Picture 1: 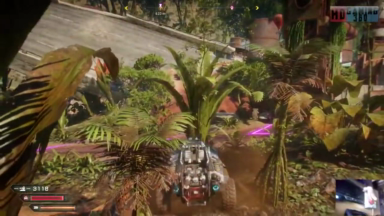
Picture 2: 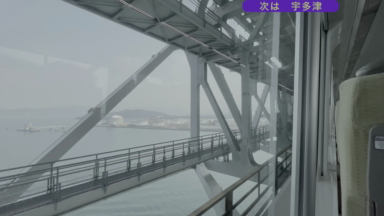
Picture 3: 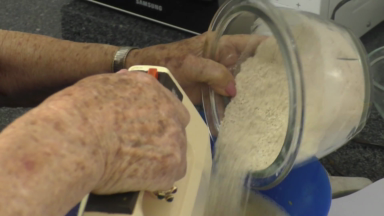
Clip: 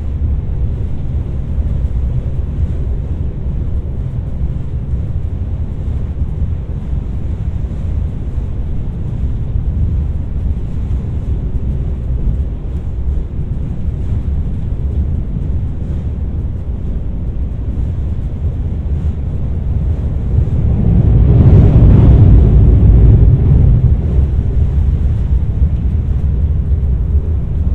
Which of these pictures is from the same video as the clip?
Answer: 2